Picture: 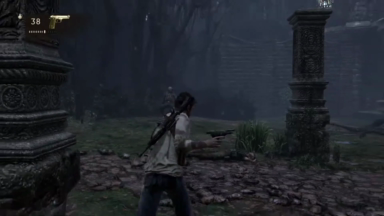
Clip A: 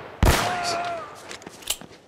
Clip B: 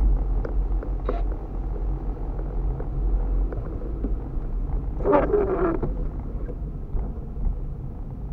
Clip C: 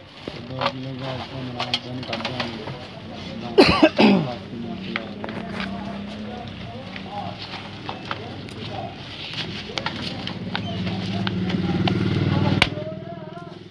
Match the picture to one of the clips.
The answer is A